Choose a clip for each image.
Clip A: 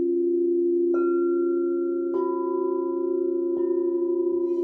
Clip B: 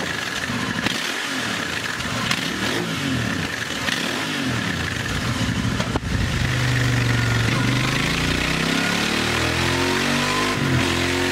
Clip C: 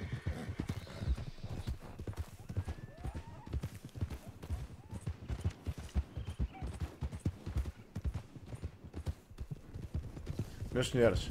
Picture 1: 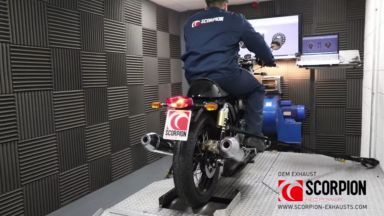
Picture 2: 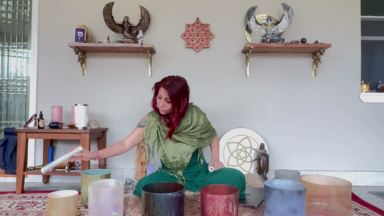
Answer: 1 B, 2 A